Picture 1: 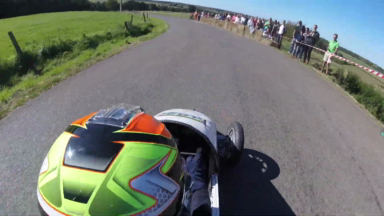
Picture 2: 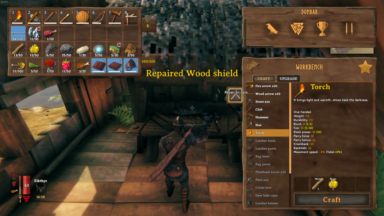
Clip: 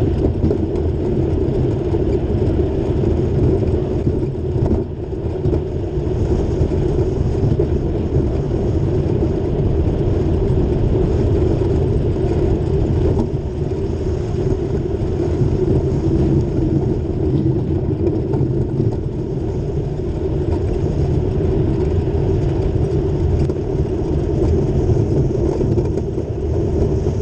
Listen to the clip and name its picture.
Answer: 1